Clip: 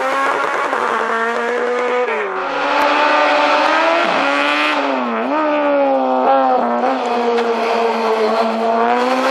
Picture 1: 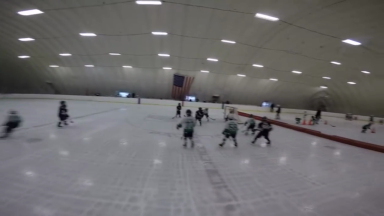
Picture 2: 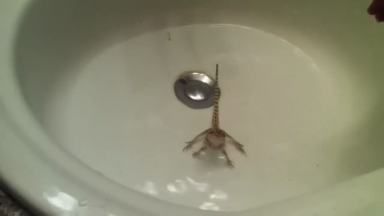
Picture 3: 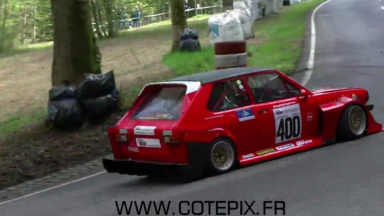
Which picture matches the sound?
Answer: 3